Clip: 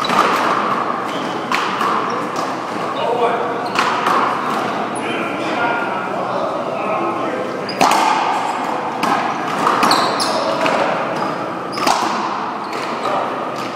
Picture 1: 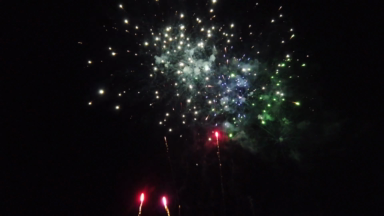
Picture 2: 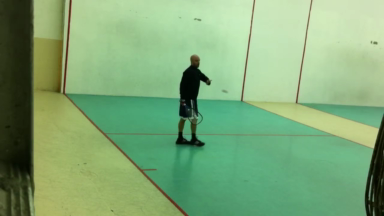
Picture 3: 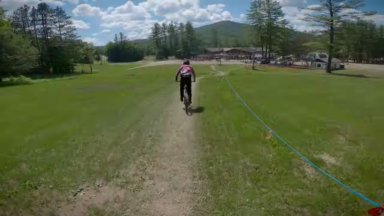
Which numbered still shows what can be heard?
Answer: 2